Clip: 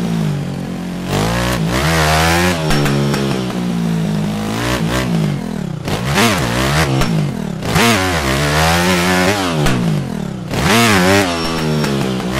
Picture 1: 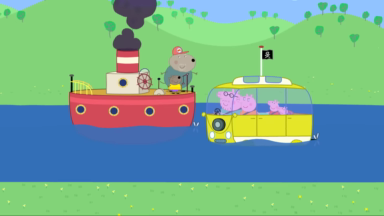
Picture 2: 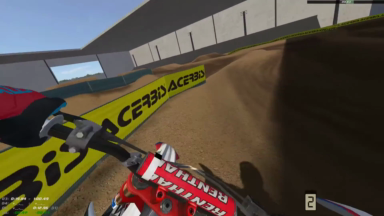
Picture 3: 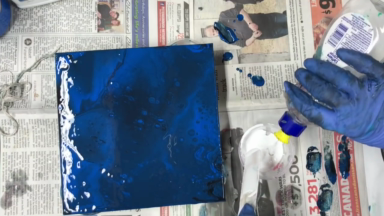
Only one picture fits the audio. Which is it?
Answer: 2